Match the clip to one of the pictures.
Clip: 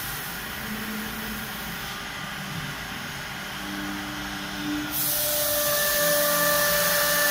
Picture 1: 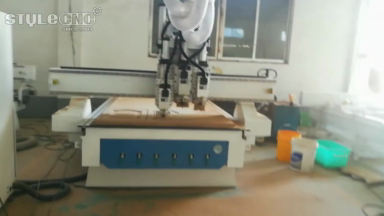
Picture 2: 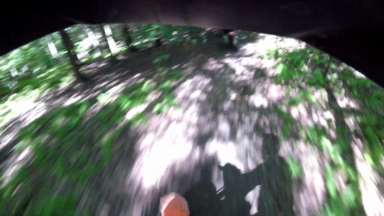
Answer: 1